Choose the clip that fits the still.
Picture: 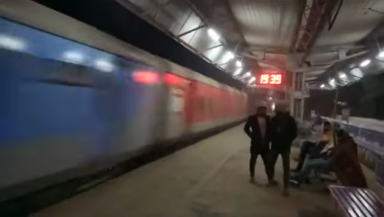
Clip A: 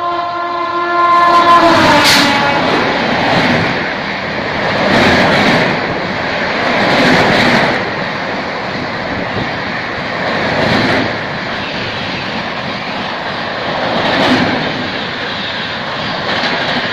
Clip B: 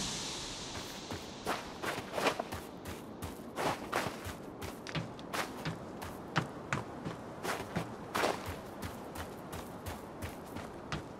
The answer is A